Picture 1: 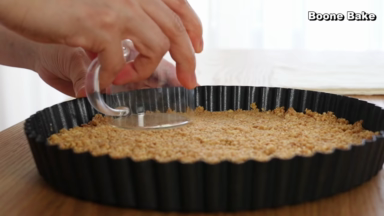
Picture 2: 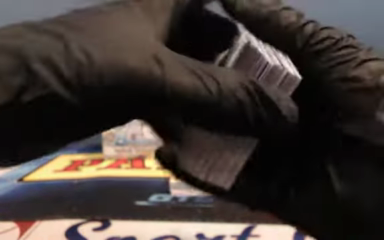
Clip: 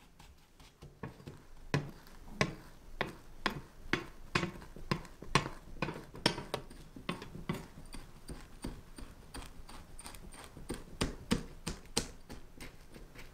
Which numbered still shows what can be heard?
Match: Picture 1